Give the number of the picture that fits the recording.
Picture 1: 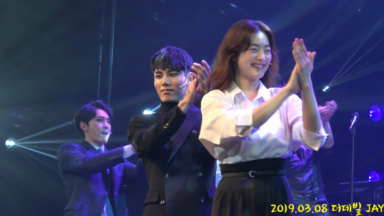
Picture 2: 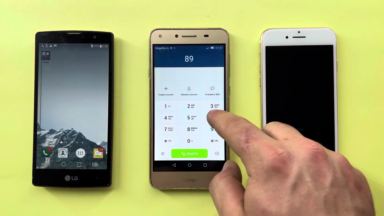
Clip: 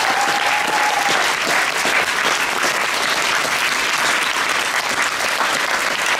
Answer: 1